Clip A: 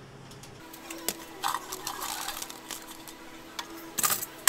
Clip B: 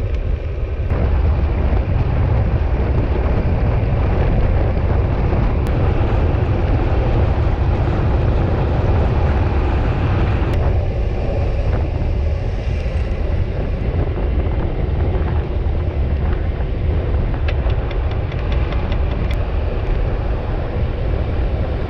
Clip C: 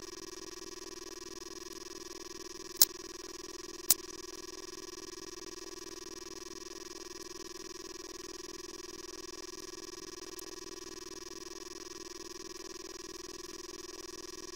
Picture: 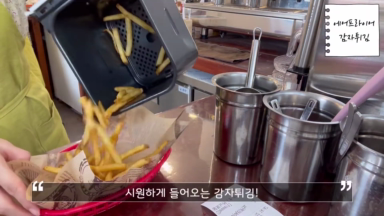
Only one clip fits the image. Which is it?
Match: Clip A